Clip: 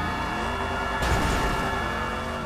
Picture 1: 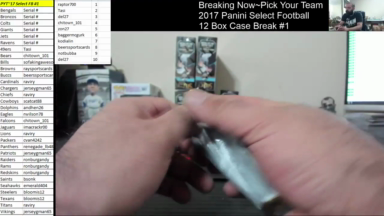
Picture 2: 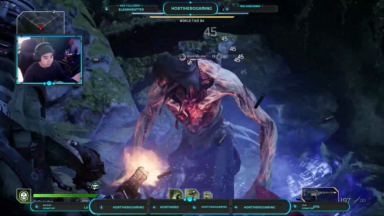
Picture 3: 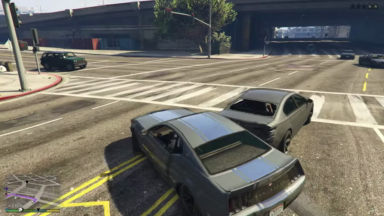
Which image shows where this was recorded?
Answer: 3